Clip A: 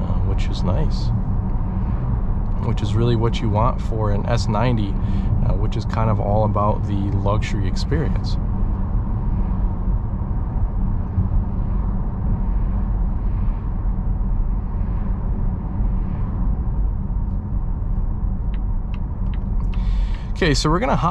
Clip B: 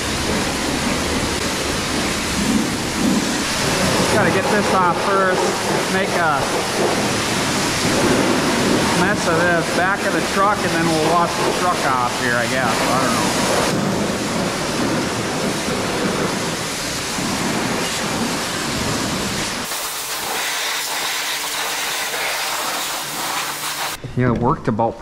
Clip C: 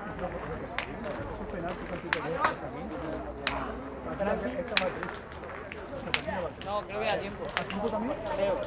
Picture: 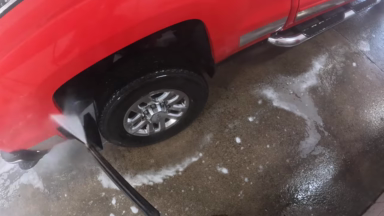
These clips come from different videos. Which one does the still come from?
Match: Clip B